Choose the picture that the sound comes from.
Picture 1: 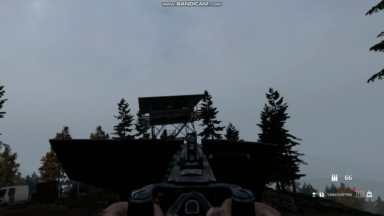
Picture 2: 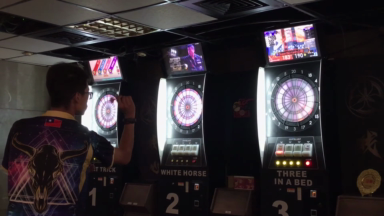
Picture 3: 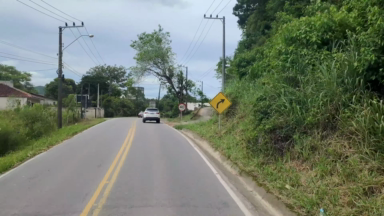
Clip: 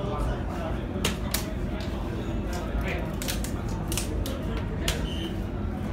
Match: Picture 2